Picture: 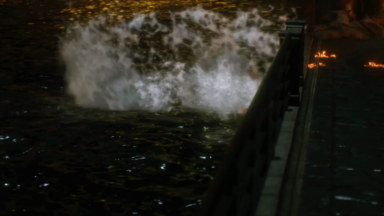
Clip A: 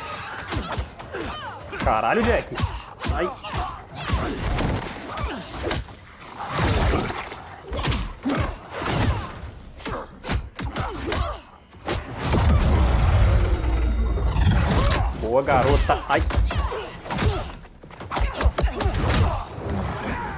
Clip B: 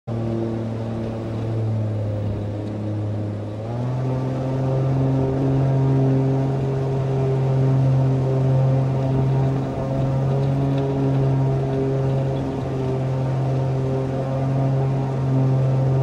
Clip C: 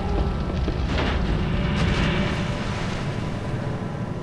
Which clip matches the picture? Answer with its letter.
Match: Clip C